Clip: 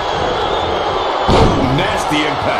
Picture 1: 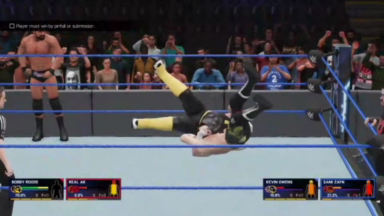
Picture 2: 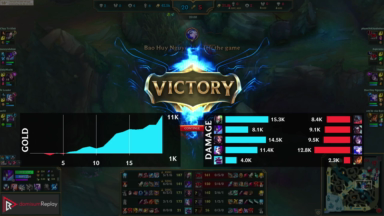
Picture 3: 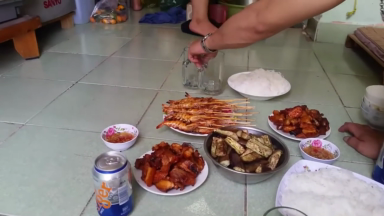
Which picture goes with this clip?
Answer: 1